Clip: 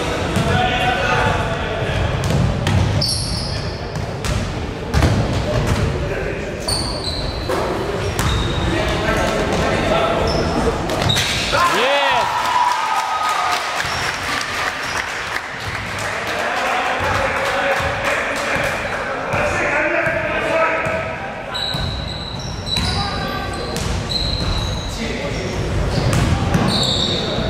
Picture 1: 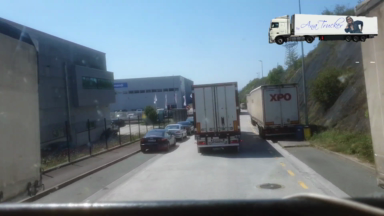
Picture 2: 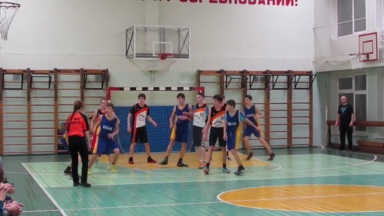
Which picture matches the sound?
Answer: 2